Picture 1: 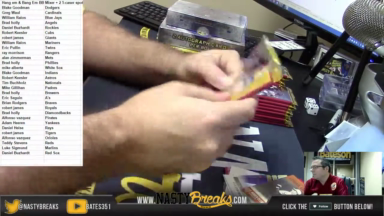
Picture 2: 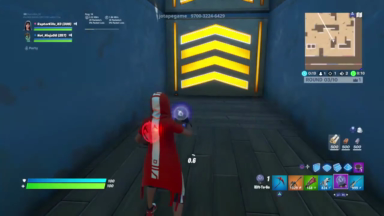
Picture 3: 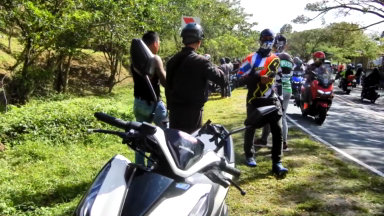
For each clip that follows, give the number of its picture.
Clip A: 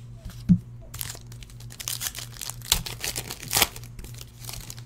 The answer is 1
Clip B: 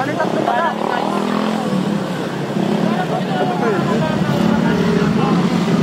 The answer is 3